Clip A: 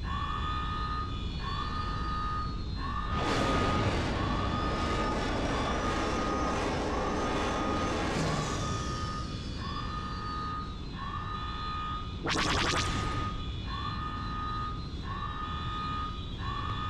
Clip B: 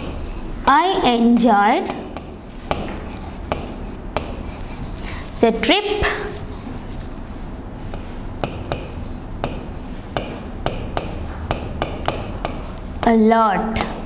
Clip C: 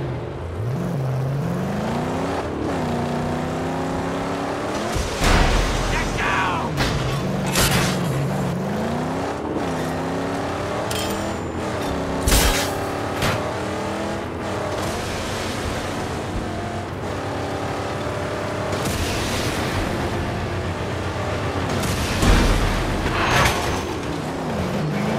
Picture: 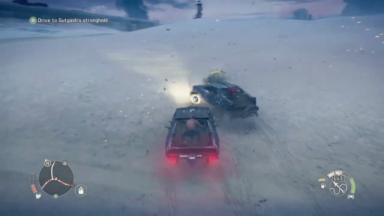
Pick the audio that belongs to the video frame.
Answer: C